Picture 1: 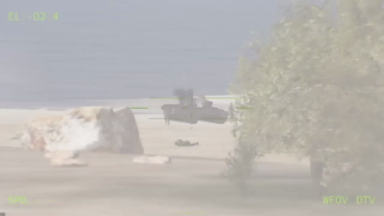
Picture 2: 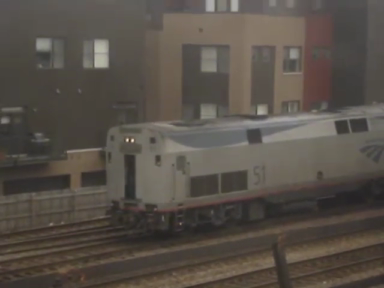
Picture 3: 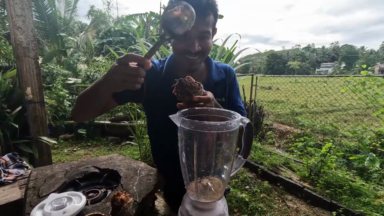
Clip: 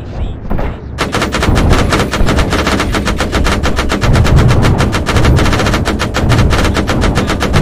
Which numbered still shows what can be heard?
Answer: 1